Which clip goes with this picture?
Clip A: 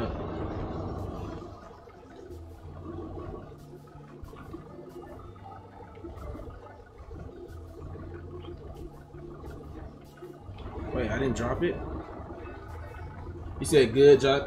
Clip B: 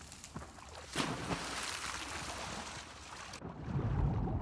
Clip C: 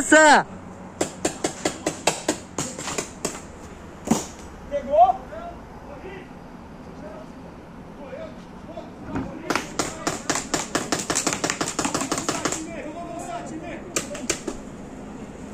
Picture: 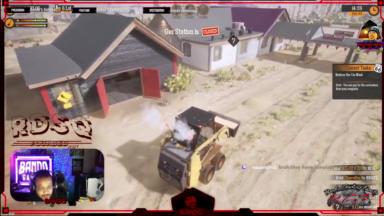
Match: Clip A